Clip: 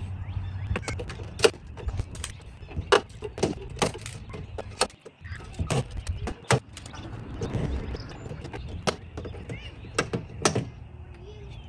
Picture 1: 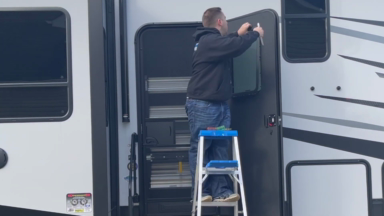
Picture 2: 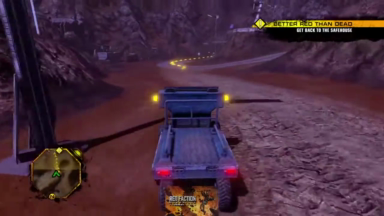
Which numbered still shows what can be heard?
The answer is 1